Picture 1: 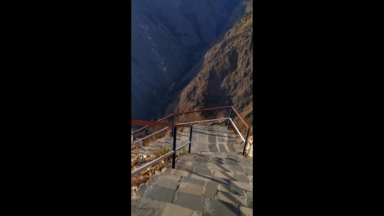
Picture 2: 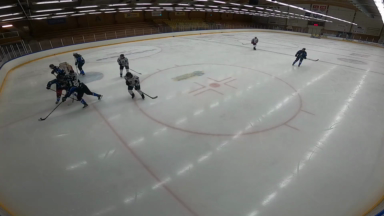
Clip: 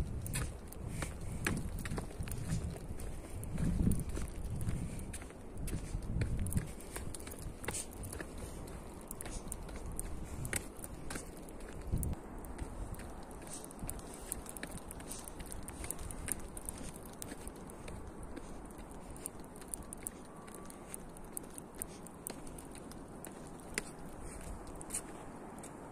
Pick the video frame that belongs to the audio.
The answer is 1